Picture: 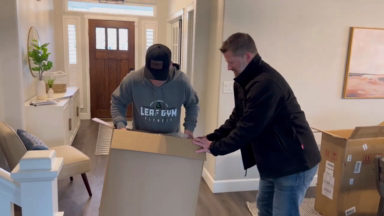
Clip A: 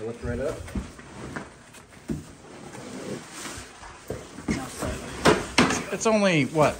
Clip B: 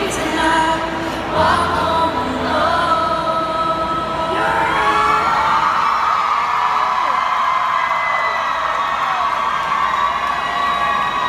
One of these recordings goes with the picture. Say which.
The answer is A